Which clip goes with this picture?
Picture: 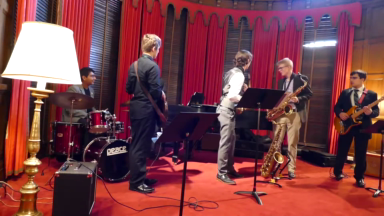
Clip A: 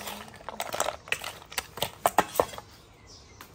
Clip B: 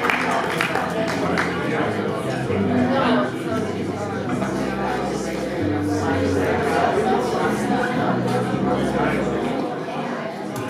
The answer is B